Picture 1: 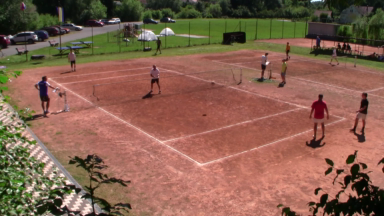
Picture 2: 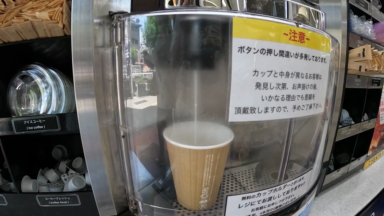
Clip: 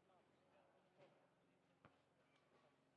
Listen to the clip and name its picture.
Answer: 1